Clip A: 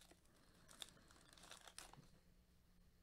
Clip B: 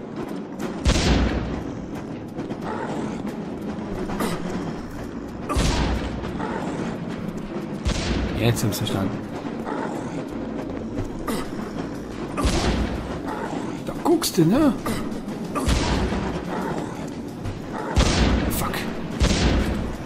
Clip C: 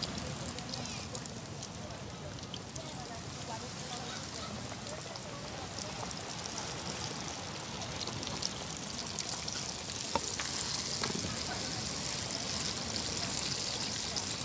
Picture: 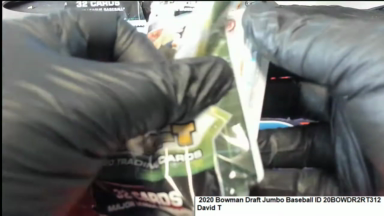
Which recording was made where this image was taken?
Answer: A